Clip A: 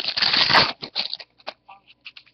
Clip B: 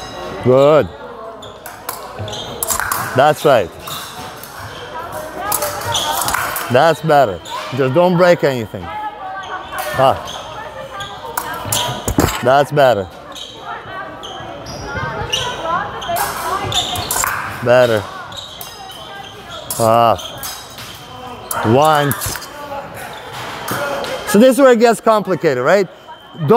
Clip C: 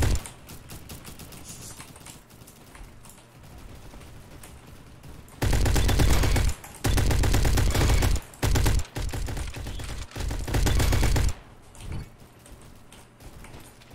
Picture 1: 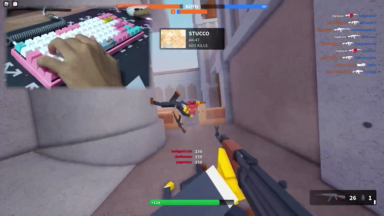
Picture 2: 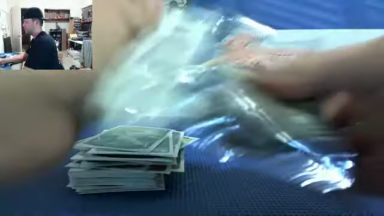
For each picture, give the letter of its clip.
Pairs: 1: C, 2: A